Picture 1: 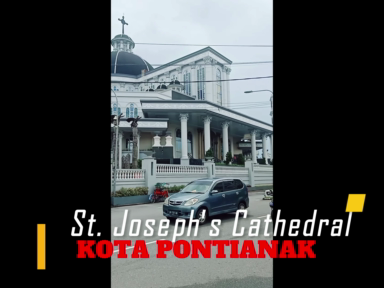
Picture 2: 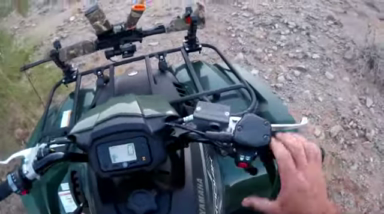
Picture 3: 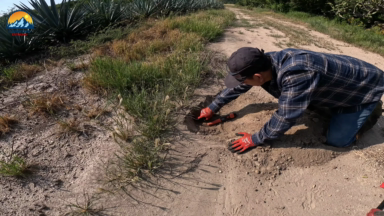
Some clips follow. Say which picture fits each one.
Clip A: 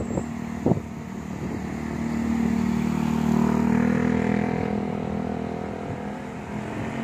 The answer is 1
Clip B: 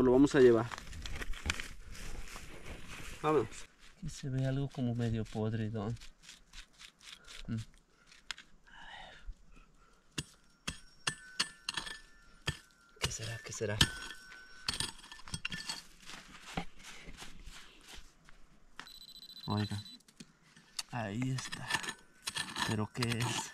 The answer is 3